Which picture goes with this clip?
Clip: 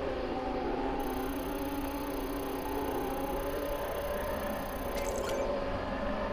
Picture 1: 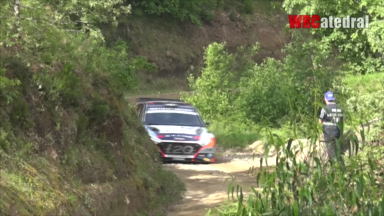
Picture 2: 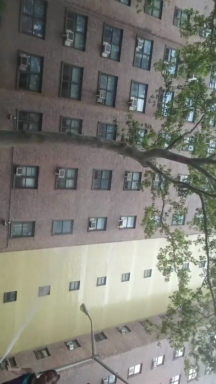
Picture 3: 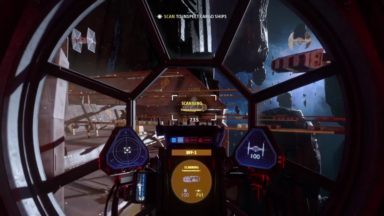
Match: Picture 3